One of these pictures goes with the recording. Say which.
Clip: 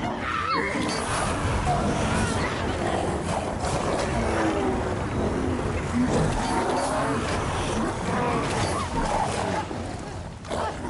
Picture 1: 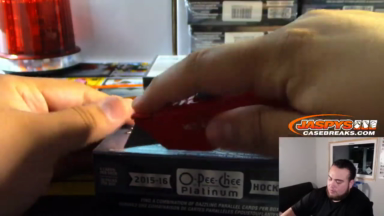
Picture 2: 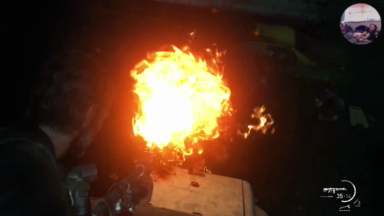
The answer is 2